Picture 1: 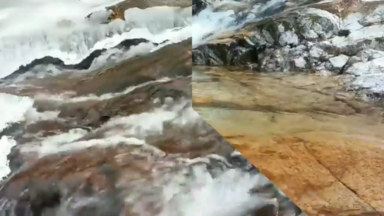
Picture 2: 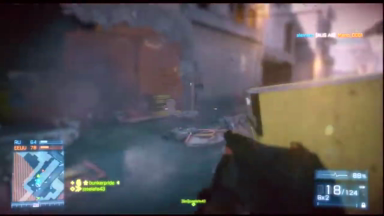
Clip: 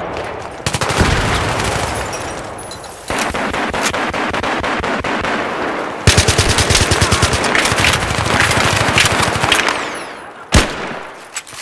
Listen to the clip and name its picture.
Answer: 2